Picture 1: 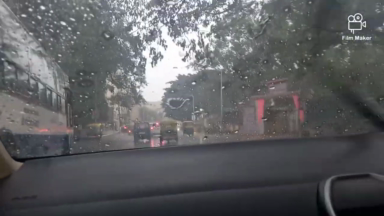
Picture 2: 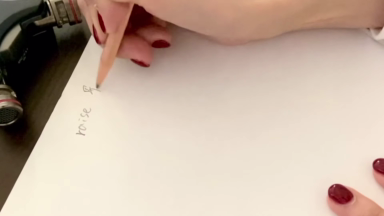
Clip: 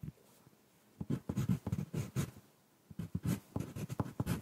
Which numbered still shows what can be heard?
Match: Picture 2